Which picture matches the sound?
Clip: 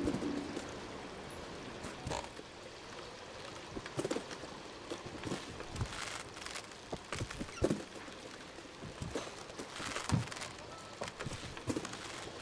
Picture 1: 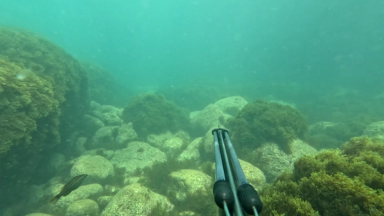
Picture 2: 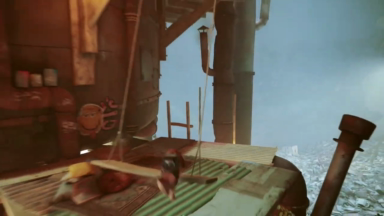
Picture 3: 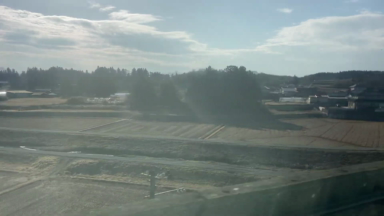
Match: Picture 2